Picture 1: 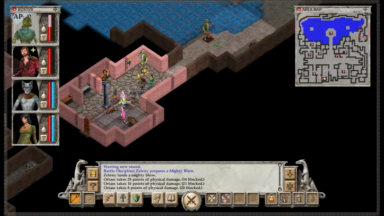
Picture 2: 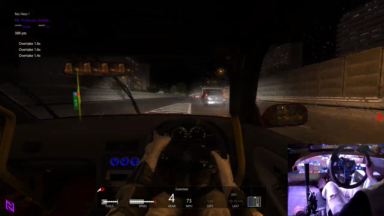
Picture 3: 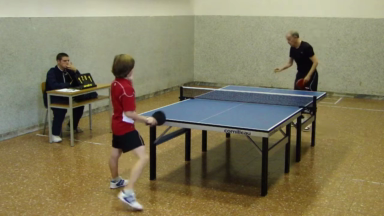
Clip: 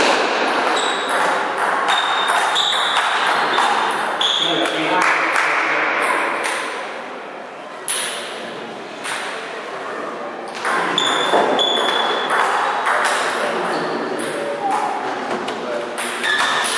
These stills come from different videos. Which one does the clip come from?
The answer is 3